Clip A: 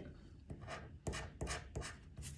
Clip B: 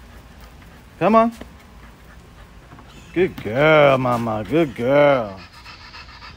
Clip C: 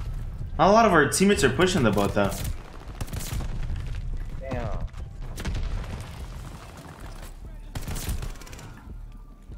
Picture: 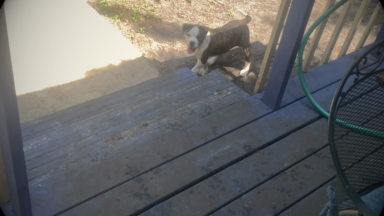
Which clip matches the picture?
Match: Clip B